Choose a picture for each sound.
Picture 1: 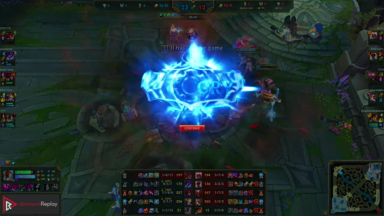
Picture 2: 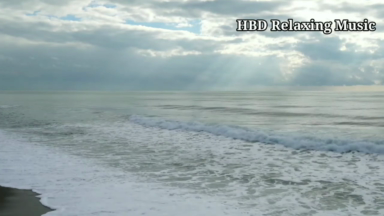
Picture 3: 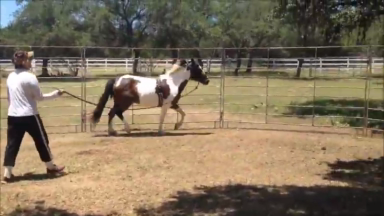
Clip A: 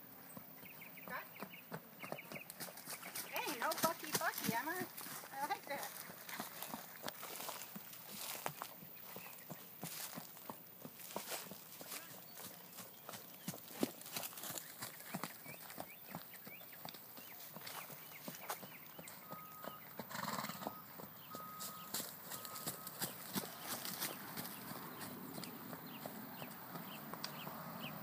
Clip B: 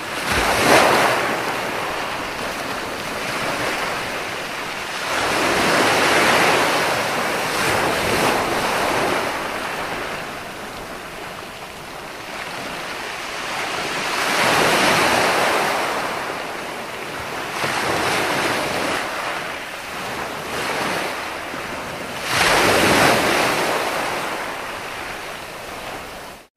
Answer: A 3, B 2